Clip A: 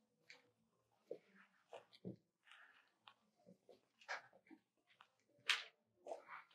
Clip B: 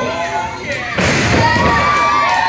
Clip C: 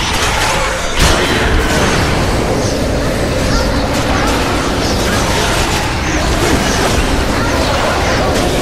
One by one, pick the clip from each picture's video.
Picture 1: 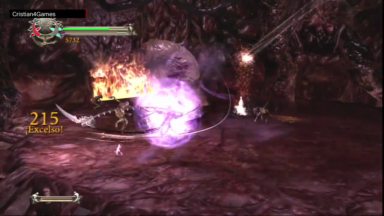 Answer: C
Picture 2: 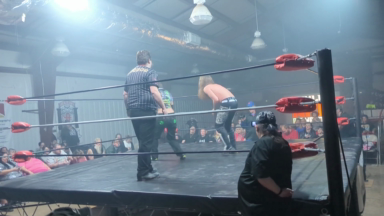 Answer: B